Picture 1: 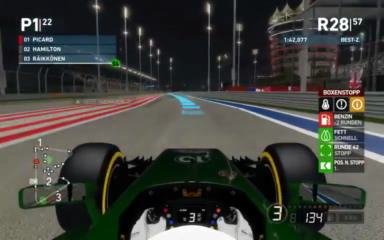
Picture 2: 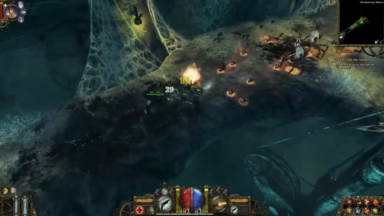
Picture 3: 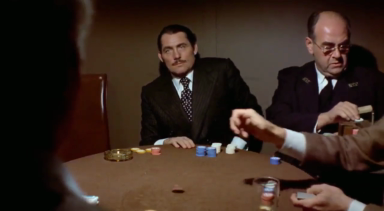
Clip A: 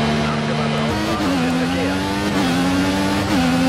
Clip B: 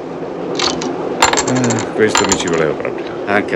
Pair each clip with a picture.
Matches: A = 1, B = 3